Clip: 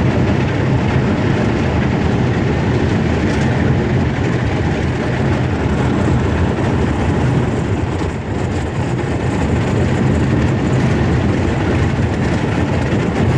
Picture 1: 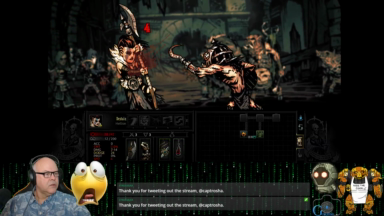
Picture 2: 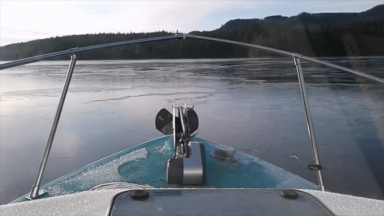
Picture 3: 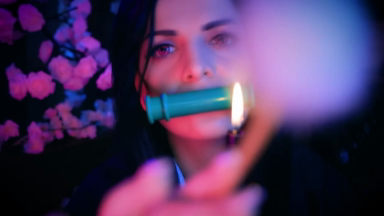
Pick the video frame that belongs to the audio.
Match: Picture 2